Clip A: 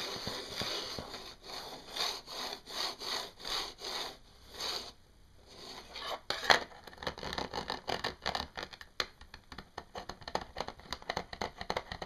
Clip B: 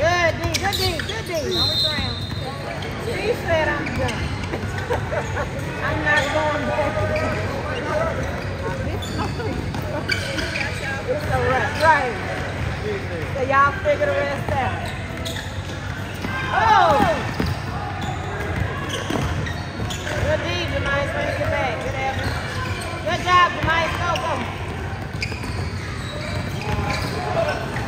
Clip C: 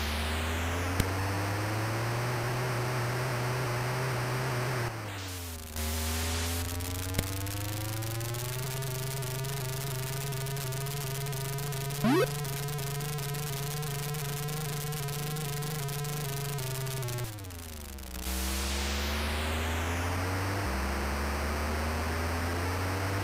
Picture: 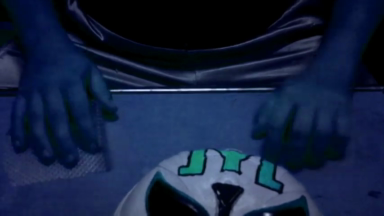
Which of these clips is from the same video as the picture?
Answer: A